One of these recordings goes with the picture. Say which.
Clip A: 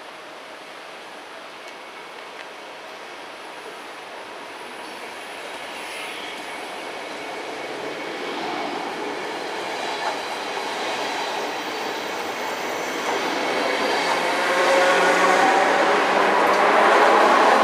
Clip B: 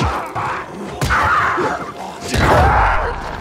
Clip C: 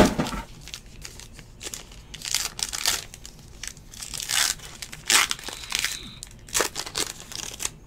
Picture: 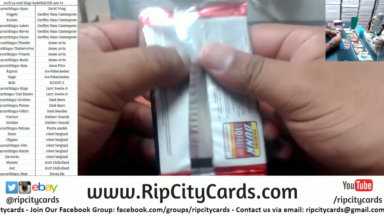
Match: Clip C